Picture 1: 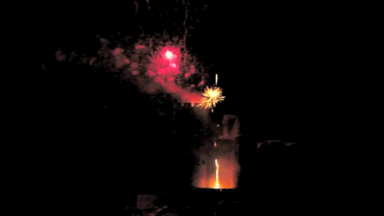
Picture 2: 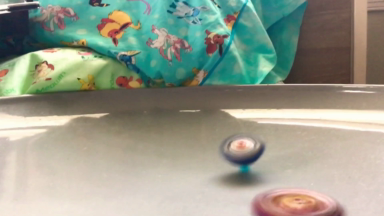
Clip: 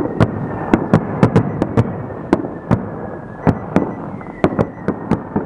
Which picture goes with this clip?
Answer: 1